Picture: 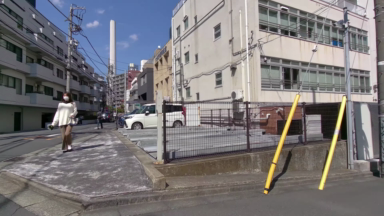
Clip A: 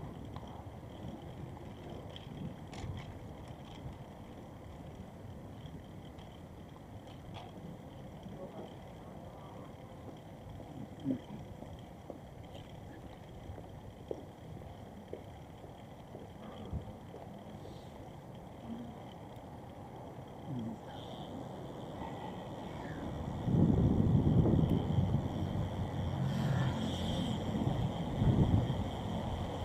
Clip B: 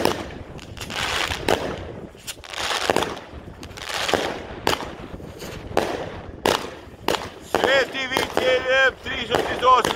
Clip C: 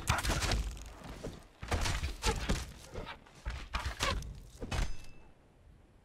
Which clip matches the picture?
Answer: A